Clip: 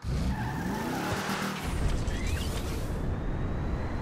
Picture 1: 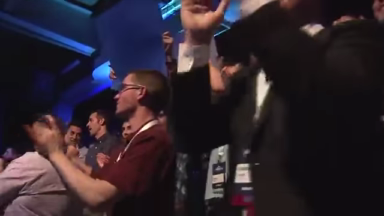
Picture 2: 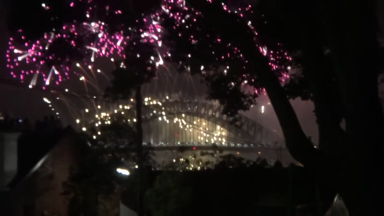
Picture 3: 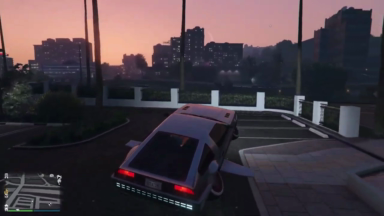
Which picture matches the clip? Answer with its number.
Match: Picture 3